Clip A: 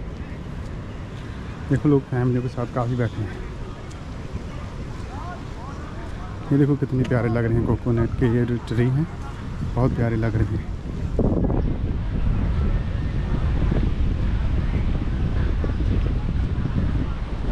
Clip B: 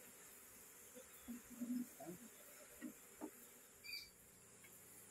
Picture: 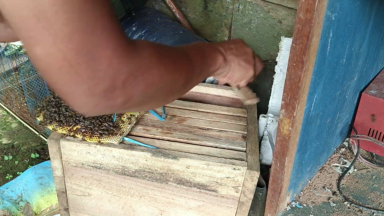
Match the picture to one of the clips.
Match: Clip B